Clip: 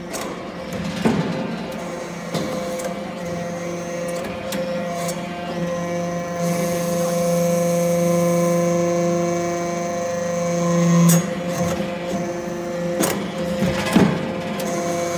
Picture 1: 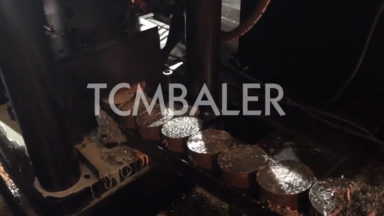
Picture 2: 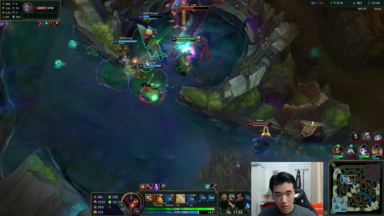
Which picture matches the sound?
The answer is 1